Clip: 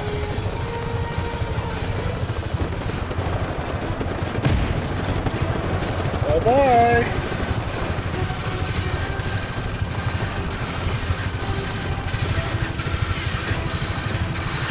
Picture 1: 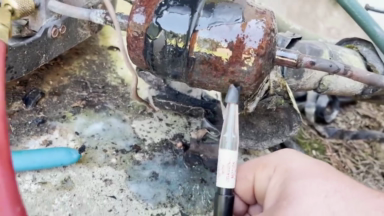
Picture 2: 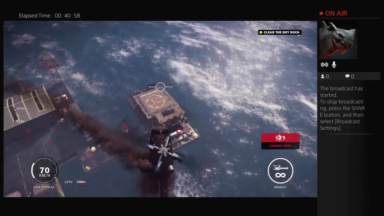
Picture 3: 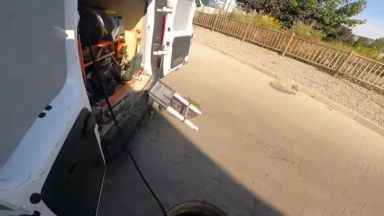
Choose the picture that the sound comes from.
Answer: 2